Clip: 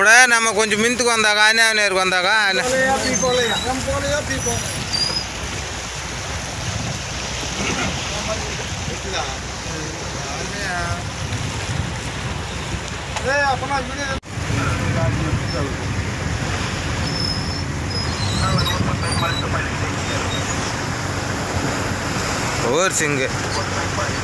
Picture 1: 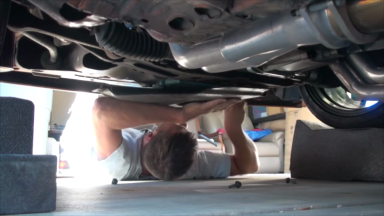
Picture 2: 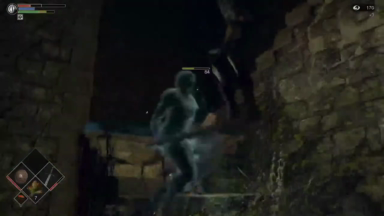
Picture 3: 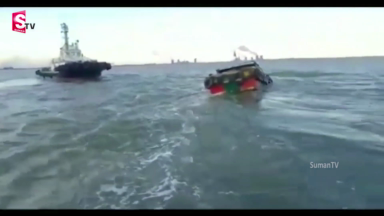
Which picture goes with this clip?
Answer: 3